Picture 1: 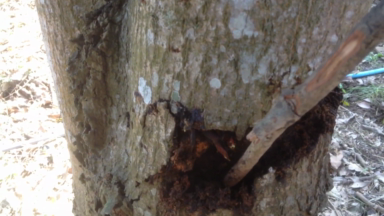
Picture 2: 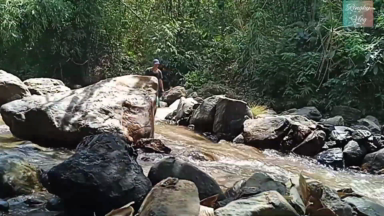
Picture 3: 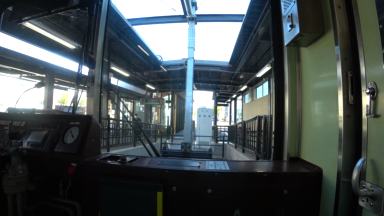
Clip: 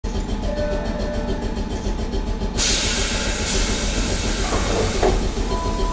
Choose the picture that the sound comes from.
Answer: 3